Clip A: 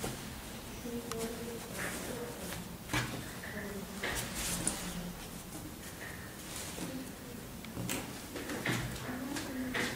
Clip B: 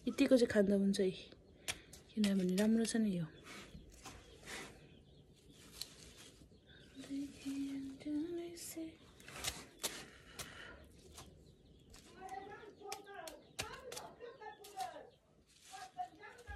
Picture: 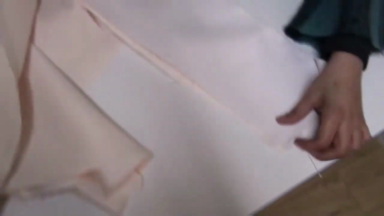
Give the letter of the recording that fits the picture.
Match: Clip A